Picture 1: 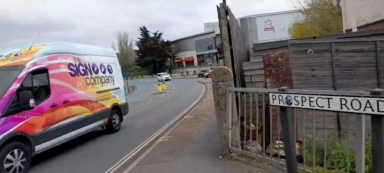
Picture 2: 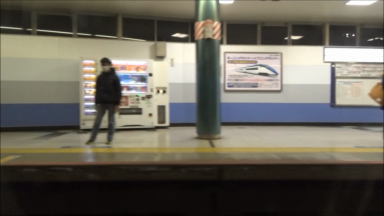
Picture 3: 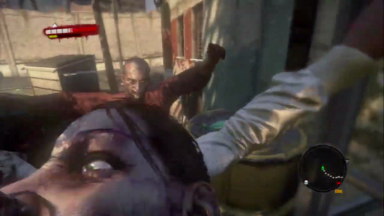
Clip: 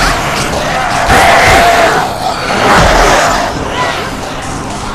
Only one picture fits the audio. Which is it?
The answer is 3